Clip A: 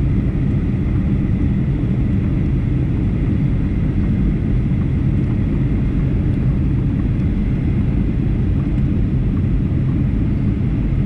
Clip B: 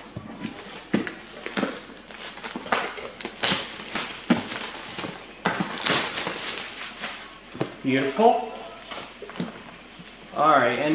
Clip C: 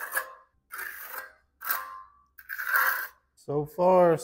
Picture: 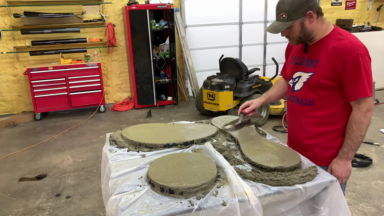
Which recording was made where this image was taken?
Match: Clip C